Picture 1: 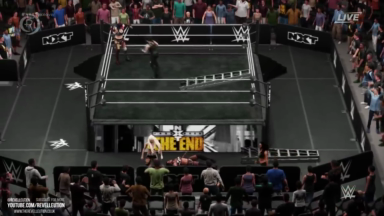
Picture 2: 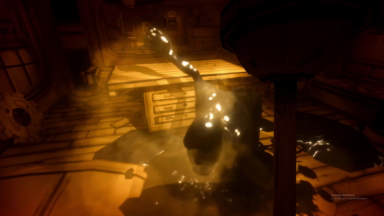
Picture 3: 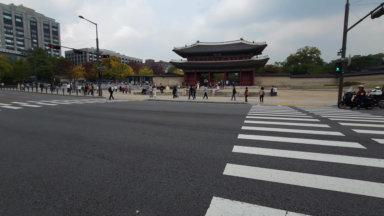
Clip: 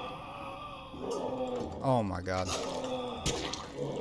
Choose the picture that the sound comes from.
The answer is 2